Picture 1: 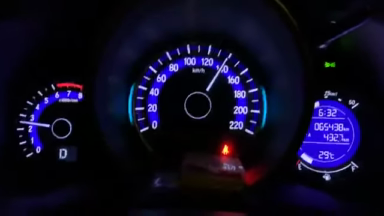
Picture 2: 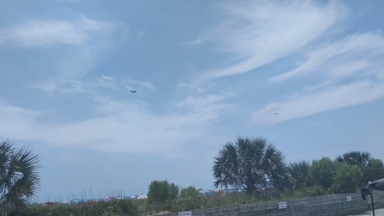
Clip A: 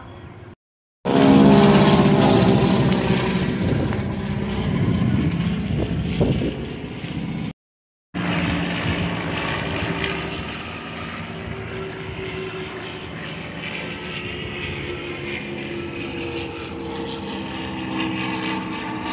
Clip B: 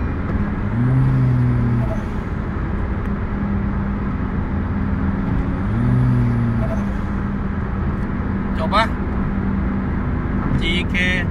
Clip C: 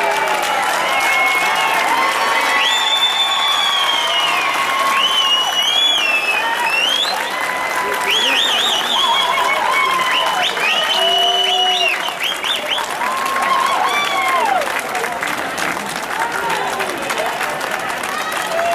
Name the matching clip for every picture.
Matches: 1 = B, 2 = A